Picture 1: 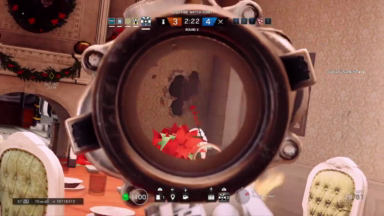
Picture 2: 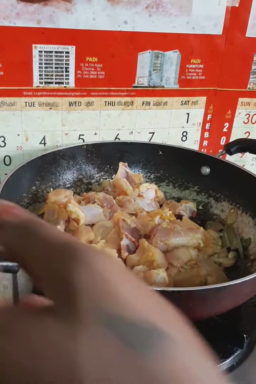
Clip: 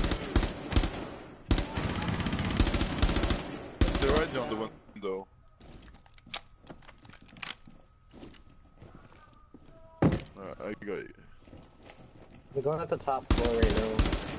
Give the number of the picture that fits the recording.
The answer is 1